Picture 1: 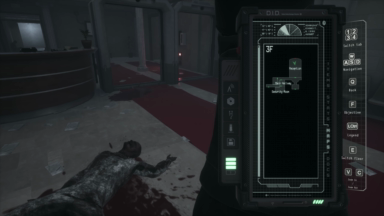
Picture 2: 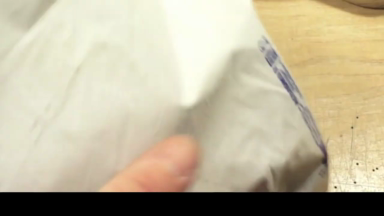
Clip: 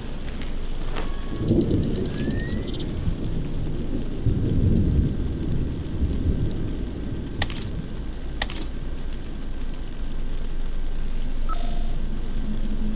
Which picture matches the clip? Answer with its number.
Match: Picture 1